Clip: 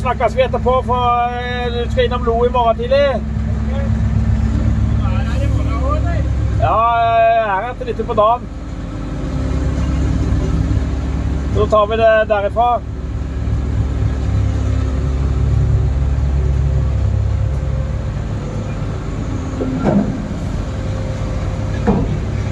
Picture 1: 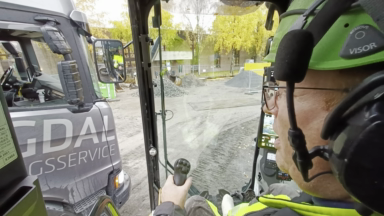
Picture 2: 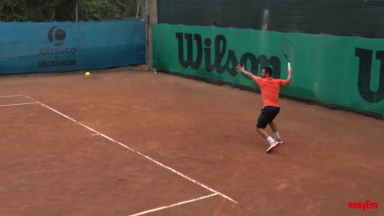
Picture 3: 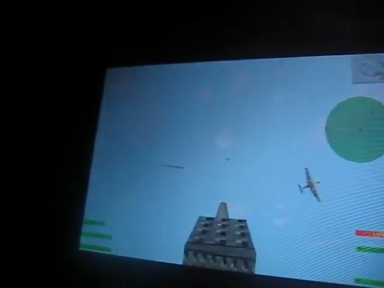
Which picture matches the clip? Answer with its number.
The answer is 1